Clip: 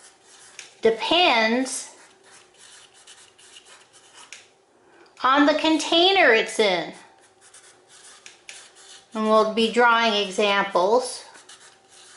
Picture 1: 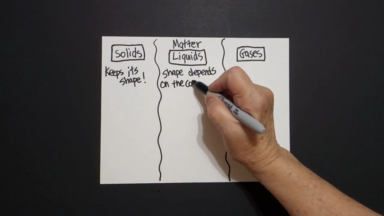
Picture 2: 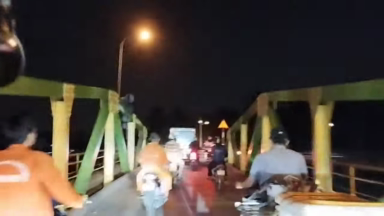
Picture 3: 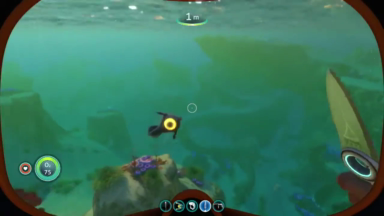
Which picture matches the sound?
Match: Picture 1